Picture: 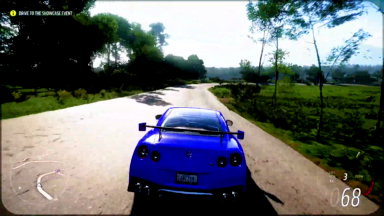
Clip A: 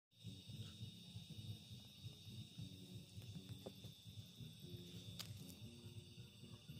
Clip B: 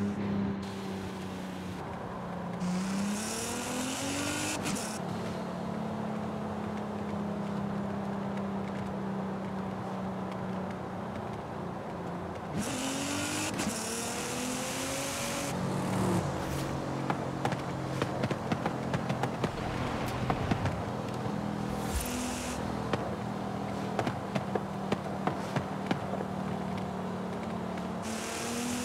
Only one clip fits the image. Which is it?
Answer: B